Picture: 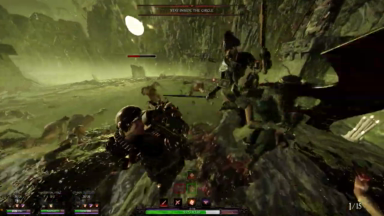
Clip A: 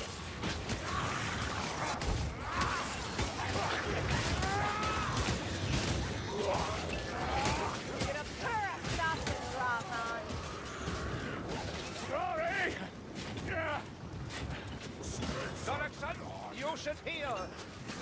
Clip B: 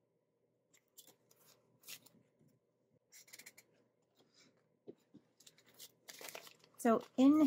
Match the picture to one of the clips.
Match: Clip A